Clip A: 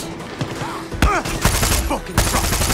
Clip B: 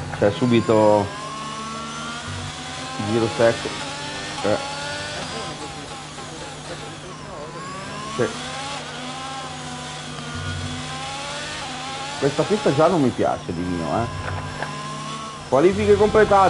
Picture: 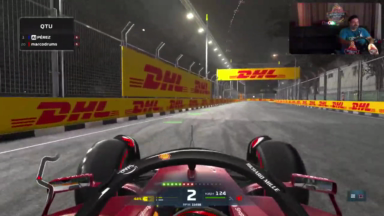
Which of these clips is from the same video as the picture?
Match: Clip B